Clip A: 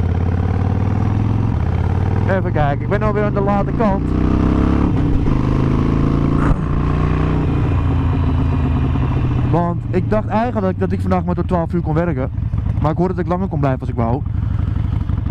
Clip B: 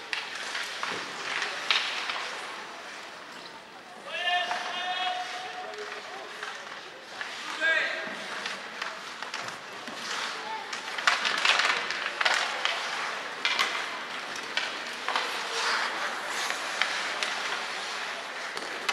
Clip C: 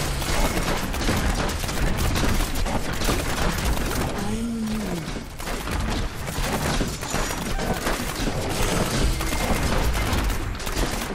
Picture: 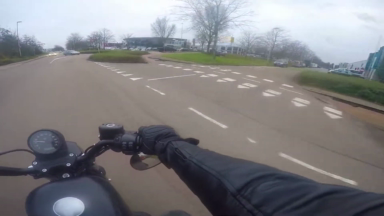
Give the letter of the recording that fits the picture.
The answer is A